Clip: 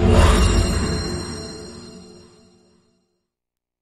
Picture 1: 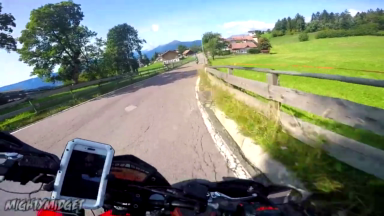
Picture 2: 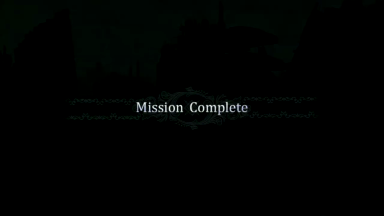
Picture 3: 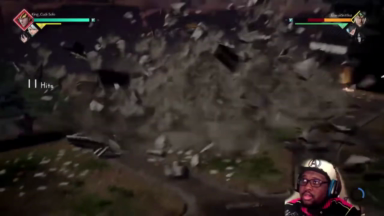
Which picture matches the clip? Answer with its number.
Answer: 2